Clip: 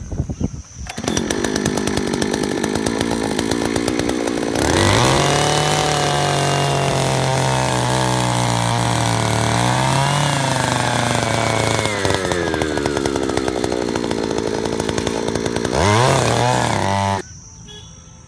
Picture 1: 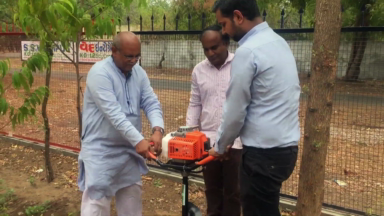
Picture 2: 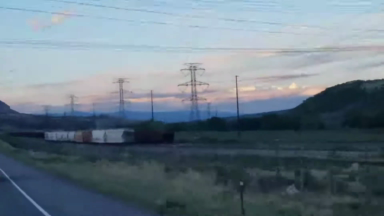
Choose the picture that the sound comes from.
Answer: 1